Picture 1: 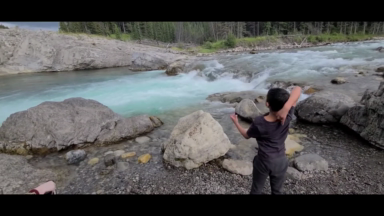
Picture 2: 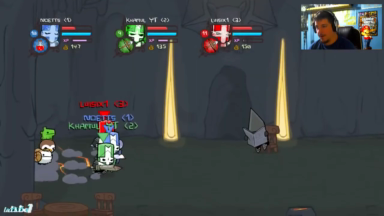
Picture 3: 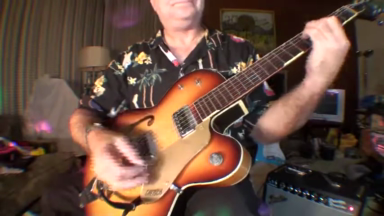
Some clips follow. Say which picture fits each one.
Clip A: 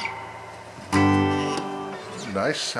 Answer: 3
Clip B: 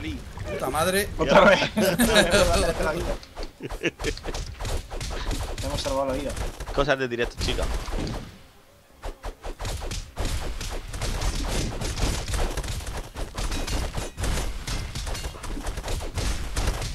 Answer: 2